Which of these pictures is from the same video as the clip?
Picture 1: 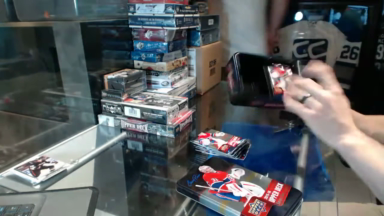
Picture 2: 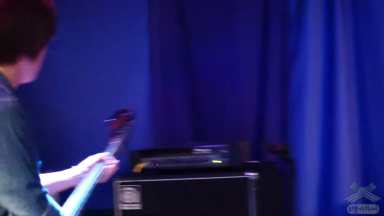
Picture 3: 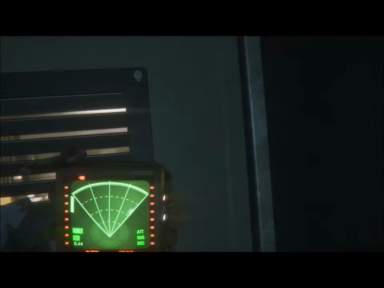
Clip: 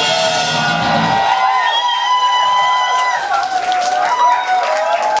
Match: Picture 2